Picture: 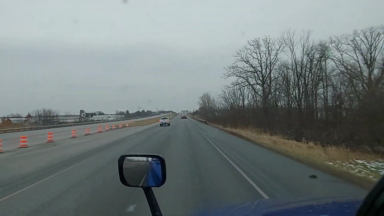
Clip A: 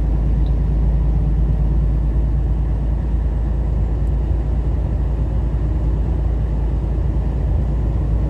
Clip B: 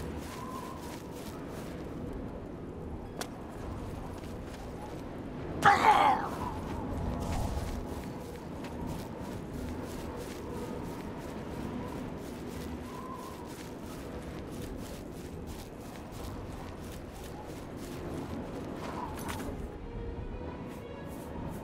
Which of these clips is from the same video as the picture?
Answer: A